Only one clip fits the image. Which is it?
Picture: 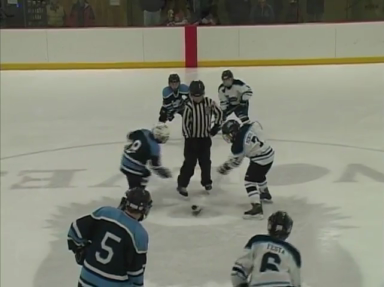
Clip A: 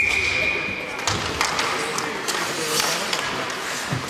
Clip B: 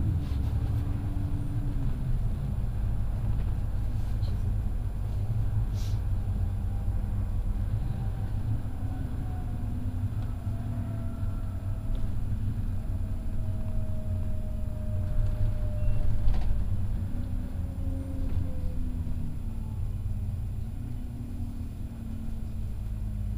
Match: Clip A